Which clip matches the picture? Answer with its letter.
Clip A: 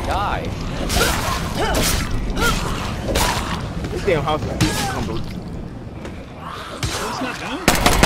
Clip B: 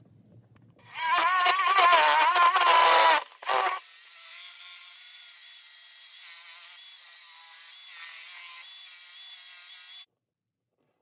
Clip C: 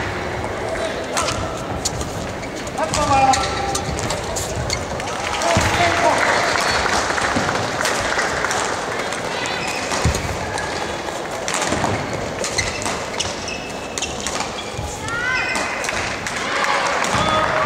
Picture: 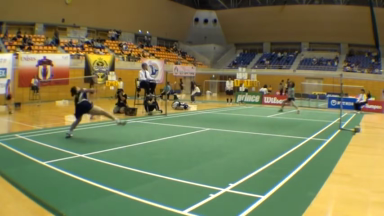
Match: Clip C